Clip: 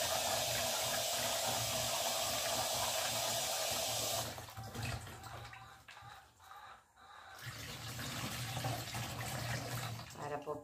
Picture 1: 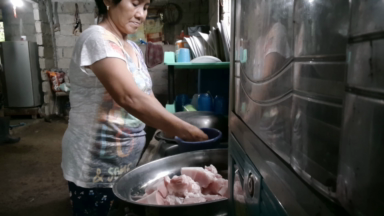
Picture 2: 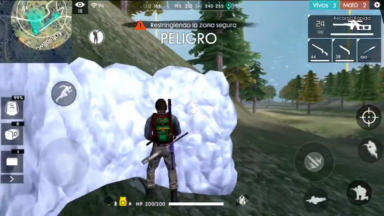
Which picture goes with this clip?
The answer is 1